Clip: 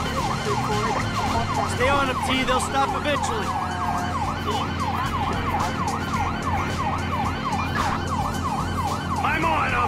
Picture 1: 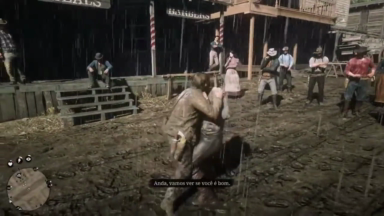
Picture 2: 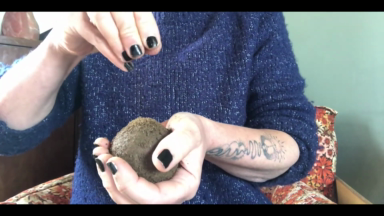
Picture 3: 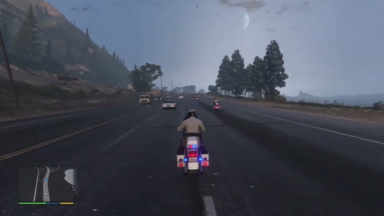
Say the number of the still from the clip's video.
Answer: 3